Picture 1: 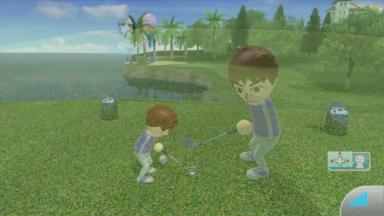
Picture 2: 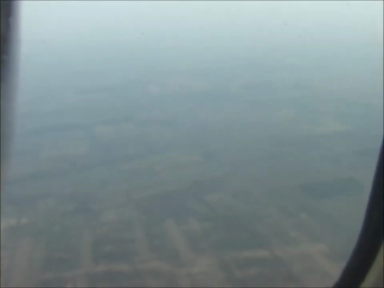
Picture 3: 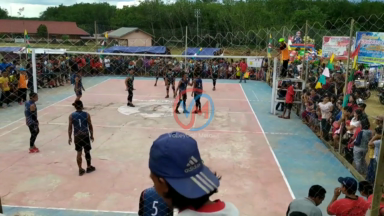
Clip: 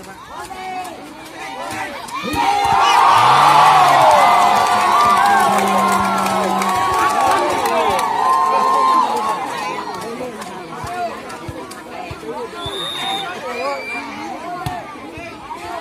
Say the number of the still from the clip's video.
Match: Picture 3